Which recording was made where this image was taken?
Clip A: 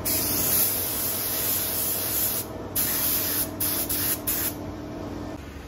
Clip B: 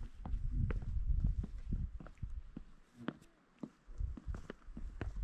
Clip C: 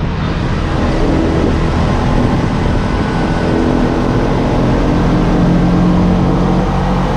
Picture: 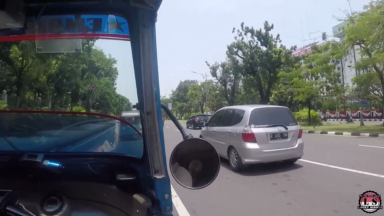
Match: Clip C